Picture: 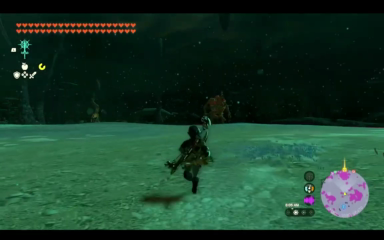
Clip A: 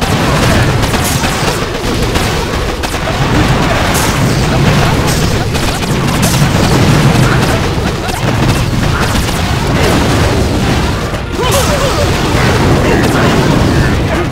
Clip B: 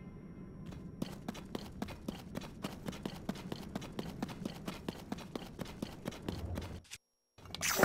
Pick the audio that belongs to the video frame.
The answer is B